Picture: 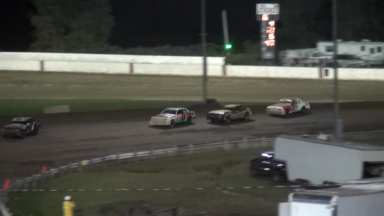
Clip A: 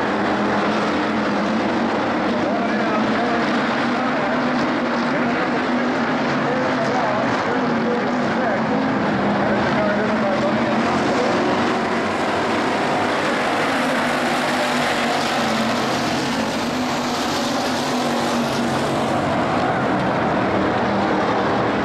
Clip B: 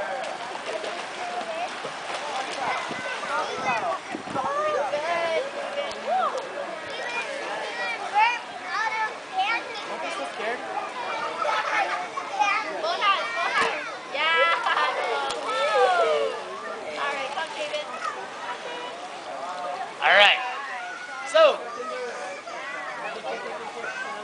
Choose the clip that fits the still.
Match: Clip A